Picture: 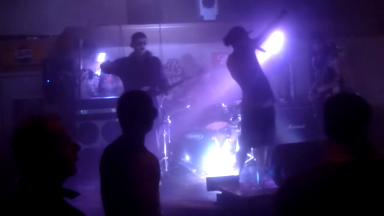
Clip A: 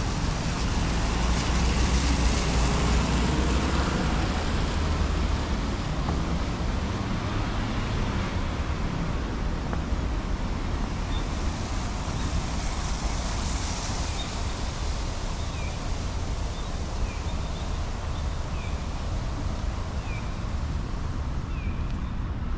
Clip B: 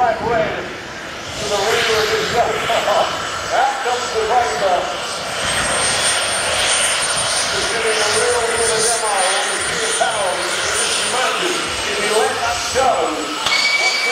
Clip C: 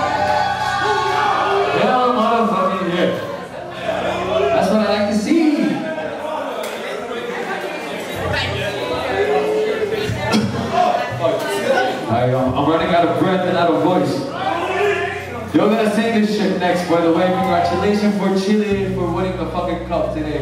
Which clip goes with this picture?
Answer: C